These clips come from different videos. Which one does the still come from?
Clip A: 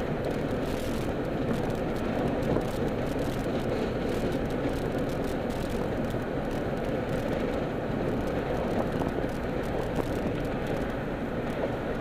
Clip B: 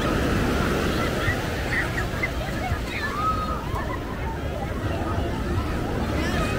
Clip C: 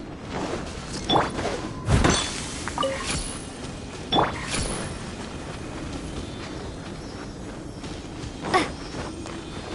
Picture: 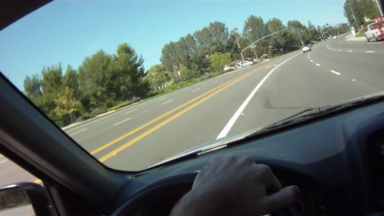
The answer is A